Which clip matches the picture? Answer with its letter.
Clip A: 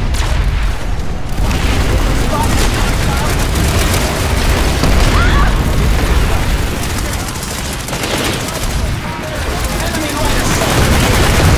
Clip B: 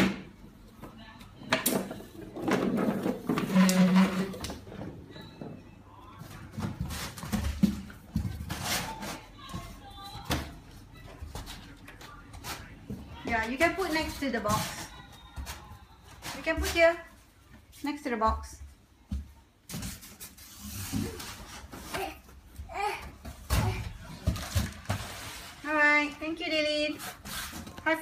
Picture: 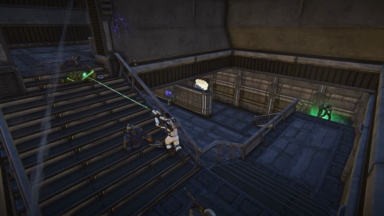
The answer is A